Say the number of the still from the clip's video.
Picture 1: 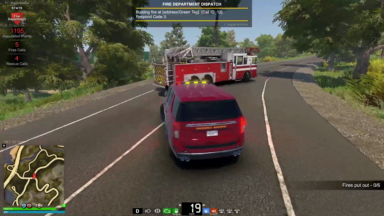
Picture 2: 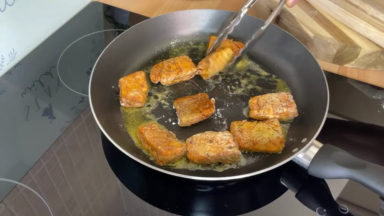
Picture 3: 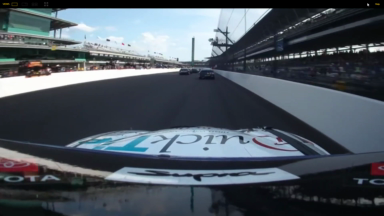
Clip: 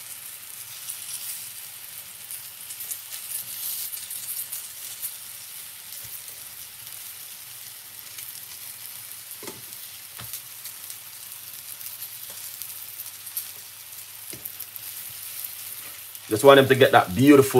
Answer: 2